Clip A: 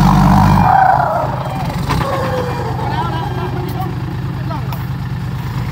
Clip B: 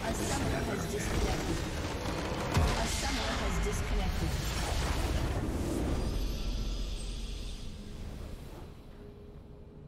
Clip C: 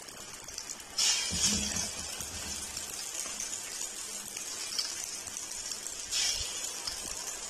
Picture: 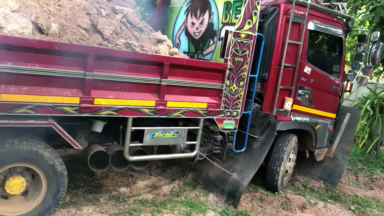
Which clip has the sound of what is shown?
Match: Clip A